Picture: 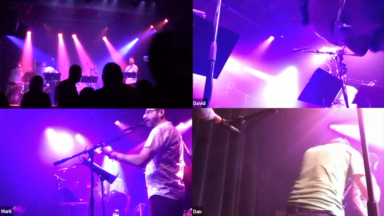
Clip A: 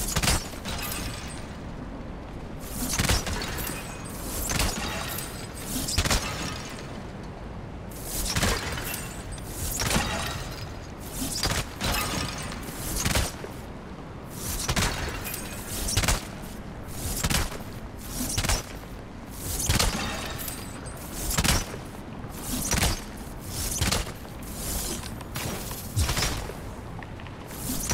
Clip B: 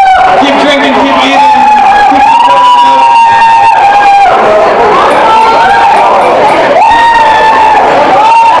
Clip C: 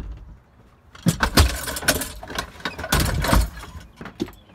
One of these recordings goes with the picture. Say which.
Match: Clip B